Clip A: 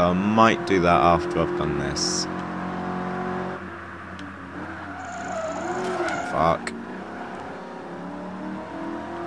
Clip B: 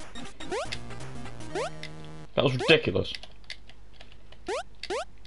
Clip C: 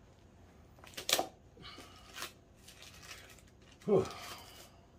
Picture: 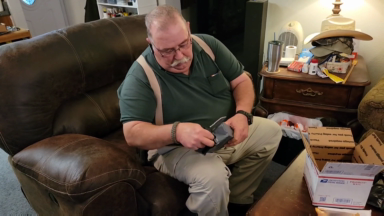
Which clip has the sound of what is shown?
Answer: C